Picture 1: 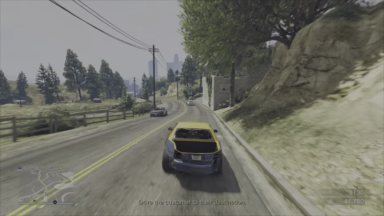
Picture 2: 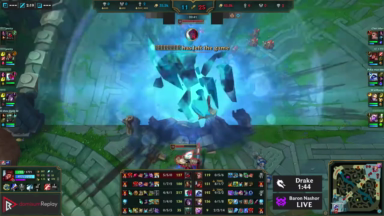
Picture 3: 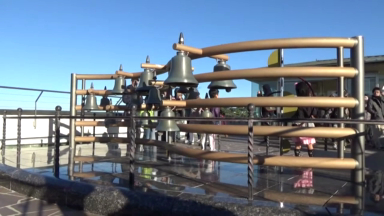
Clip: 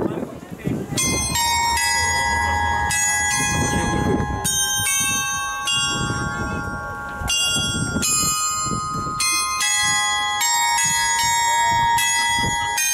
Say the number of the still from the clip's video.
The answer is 3